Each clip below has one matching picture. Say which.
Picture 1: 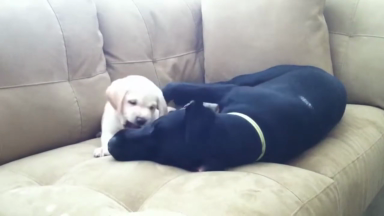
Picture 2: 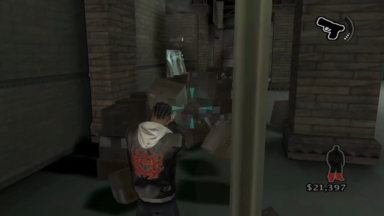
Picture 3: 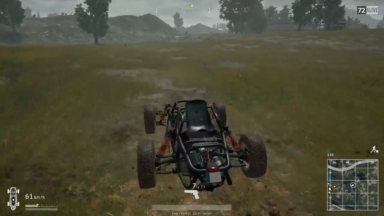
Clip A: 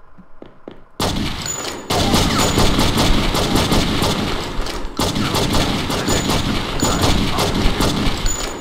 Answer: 2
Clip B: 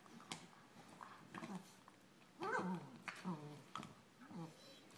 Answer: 1